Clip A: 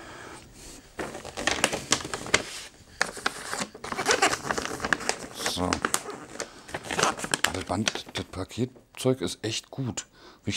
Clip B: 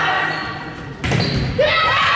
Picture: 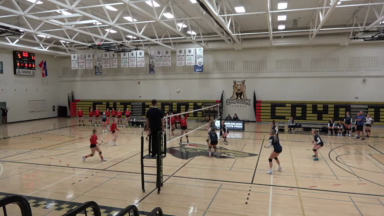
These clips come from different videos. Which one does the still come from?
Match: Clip B